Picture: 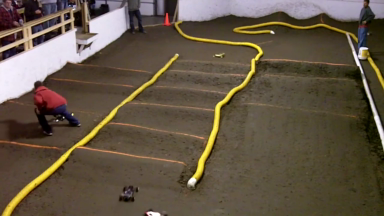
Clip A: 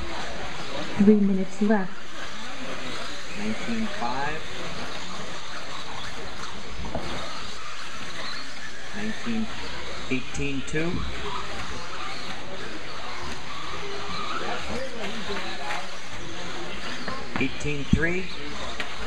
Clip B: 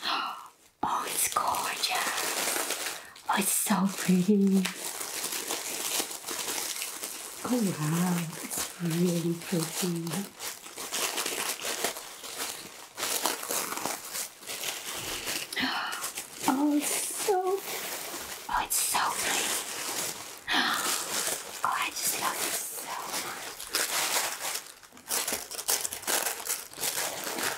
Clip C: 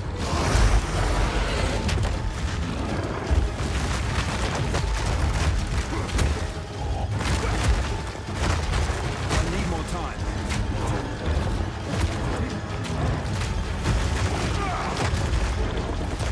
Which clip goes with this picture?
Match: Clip A